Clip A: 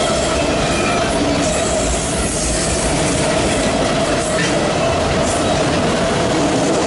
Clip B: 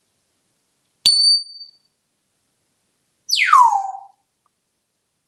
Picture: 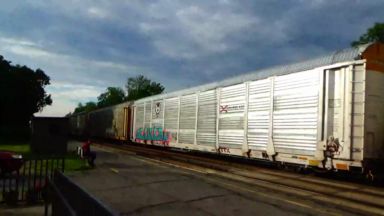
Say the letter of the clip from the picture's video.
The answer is A